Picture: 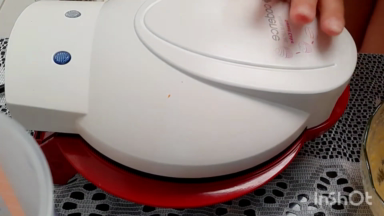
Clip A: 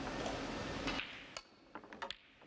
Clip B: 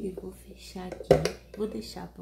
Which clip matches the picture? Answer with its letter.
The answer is B